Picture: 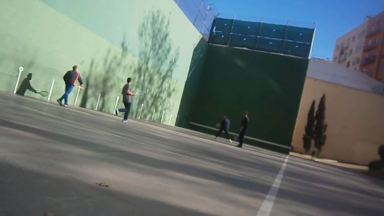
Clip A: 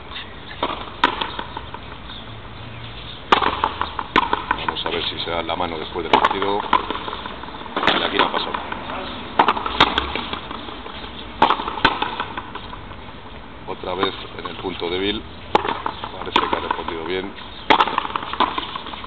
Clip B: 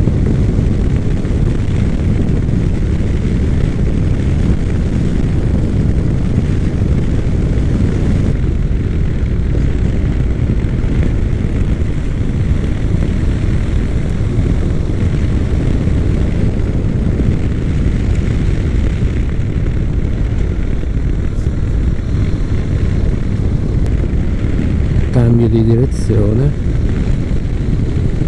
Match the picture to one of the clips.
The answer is A